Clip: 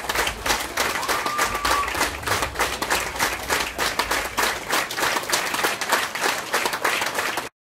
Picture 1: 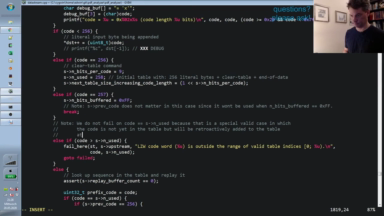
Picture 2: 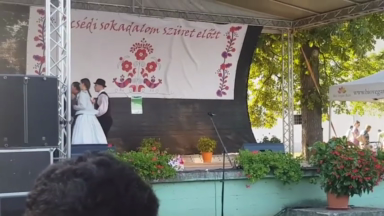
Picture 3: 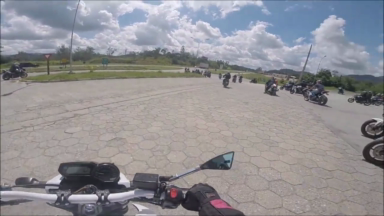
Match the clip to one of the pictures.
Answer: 2